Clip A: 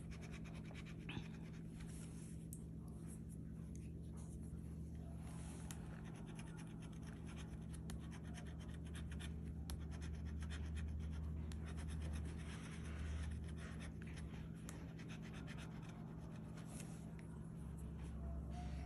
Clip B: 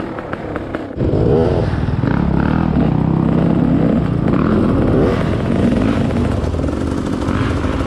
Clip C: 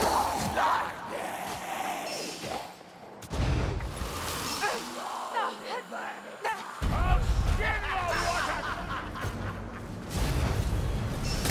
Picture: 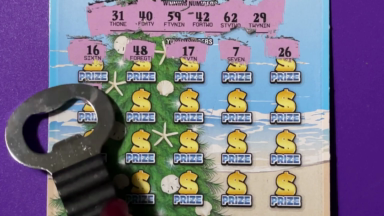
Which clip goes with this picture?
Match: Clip A